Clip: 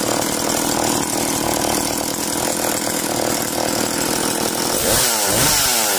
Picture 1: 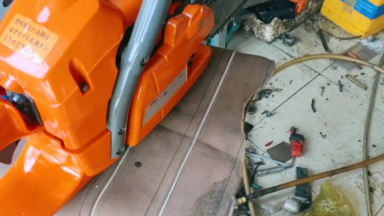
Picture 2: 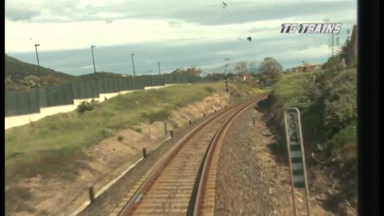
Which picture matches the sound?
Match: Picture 1